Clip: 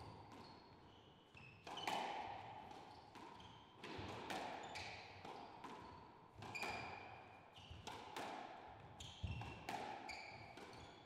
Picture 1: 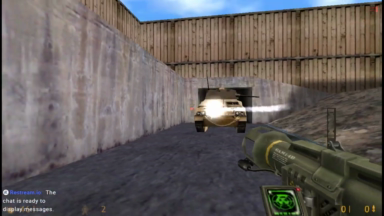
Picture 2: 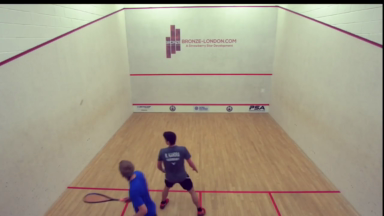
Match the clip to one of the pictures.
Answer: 2